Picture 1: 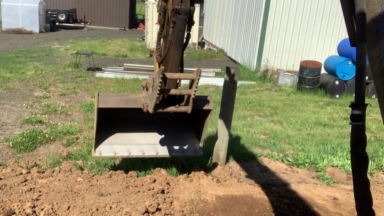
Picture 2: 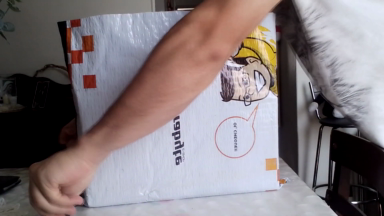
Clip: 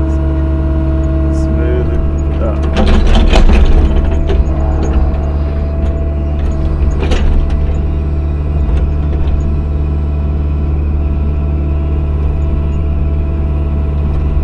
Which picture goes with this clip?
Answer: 1